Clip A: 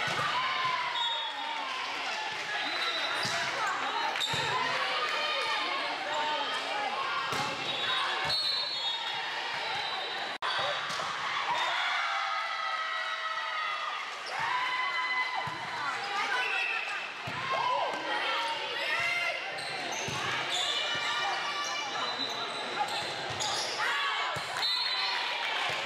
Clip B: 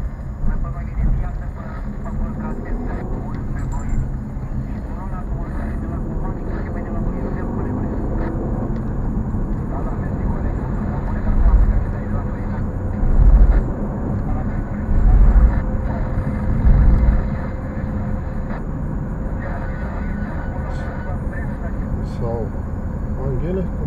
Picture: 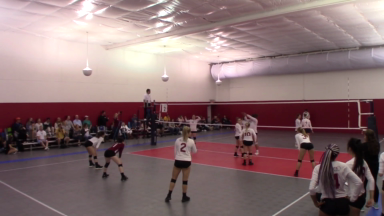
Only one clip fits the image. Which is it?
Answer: A